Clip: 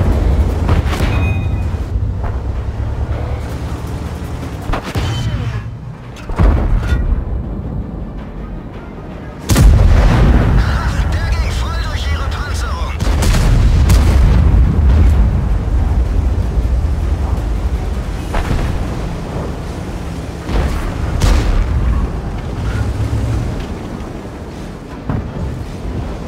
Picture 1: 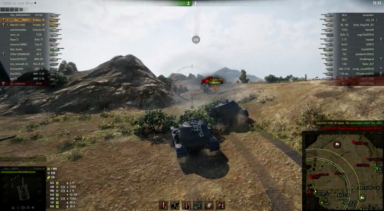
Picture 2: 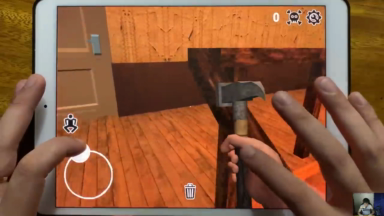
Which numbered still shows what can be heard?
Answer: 1